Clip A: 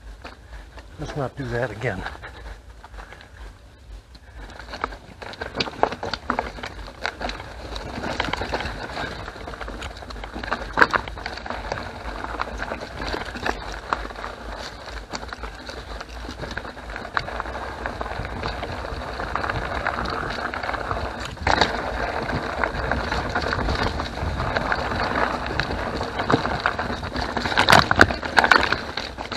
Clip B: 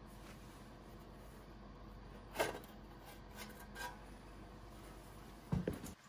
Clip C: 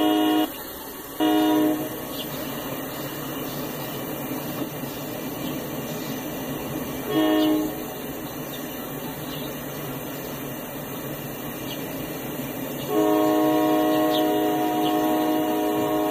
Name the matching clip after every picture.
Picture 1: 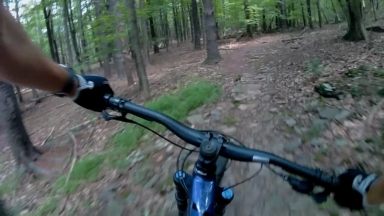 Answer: A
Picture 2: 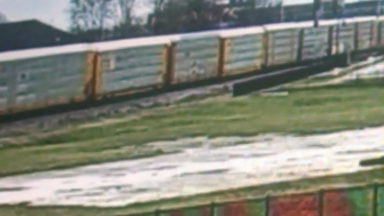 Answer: C